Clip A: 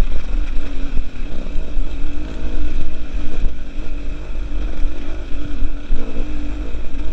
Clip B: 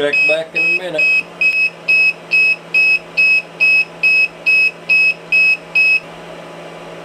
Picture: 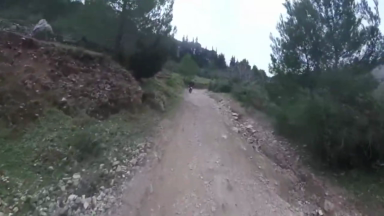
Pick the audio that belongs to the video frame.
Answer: A